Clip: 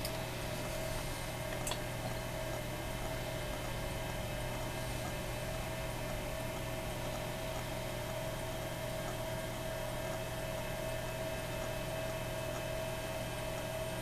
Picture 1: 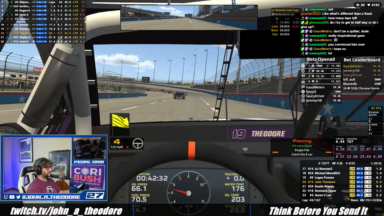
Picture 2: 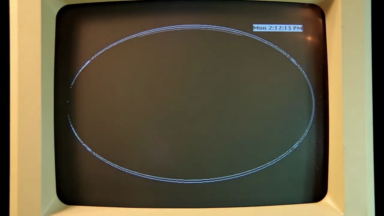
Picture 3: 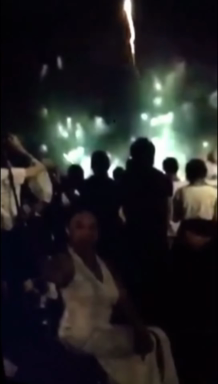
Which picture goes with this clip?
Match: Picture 2